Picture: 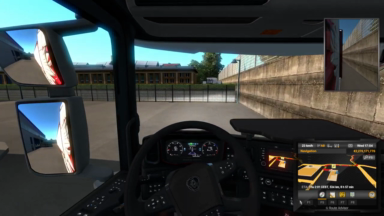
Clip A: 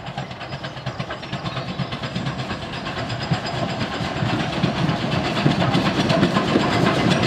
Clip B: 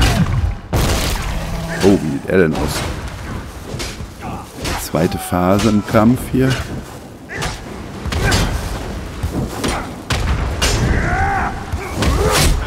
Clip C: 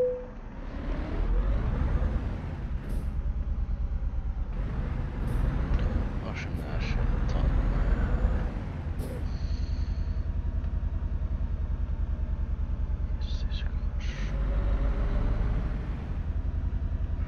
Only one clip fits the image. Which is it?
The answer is C